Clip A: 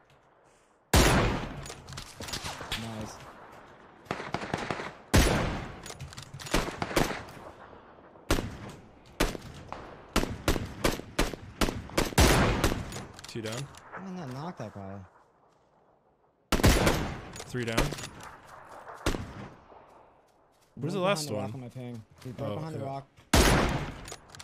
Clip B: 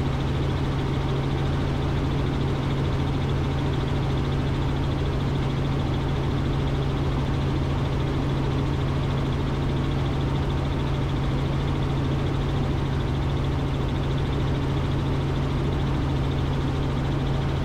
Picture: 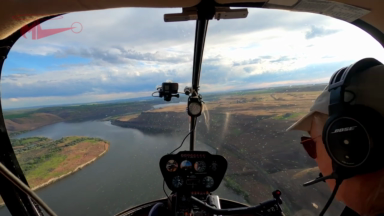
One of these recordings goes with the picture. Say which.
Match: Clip B